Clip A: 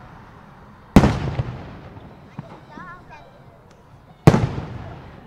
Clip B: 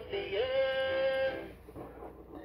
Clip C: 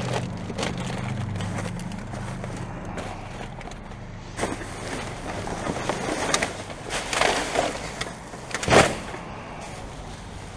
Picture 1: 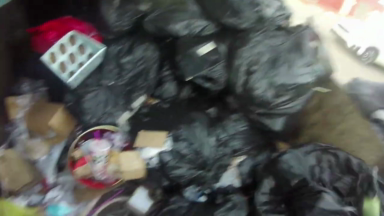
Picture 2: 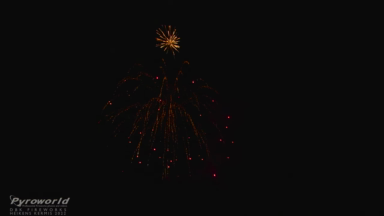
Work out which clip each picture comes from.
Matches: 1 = C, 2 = A